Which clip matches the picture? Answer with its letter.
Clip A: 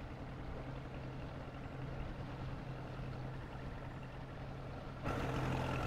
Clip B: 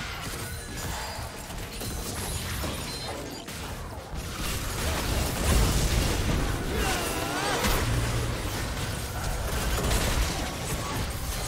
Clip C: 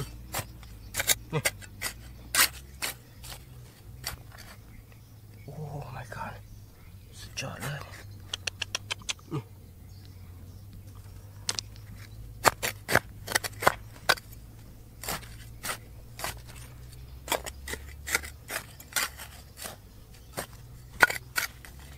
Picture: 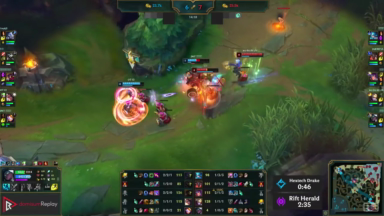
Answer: B